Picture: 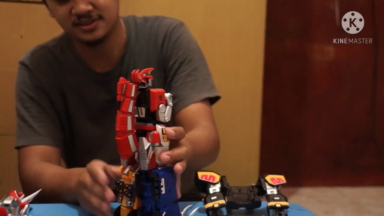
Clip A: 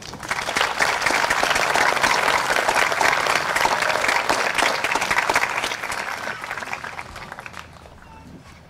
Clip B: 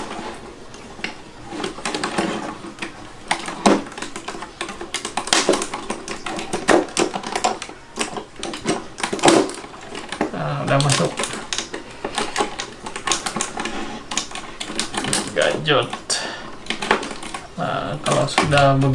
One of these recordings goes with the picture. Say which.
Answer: B